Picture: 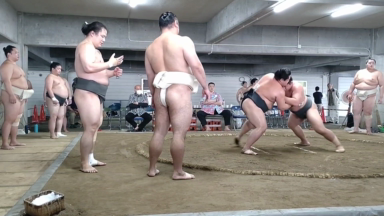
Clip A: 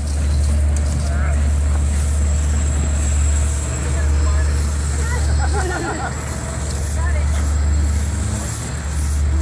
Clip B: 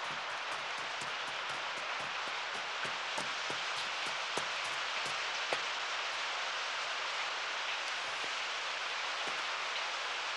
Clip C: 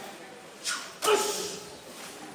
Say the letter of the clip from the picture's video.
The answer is C